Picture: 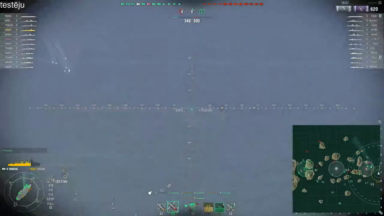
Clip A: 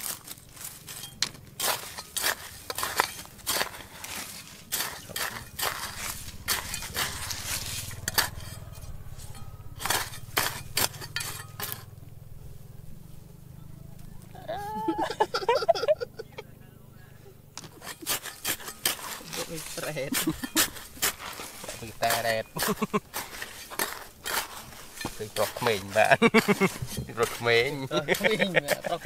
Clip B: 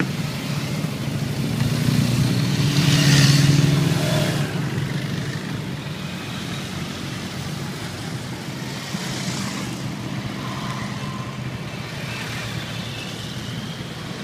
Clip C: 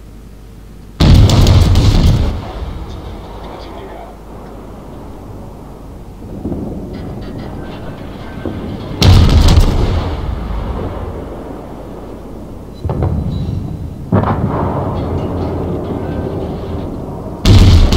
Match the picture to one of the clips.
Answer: C